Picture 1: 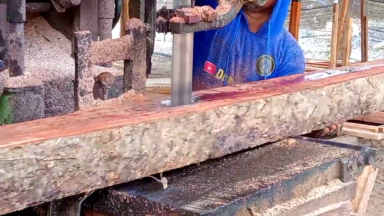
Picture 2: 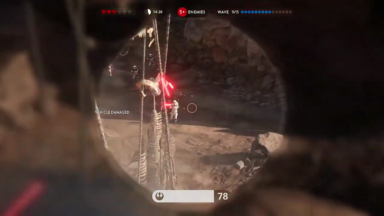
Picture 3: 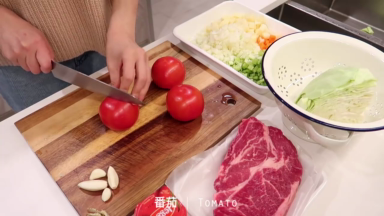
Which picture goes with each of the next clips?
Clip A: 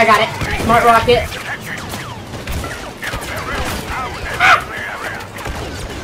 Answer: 2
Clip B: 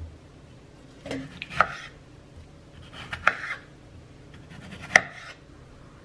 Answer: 3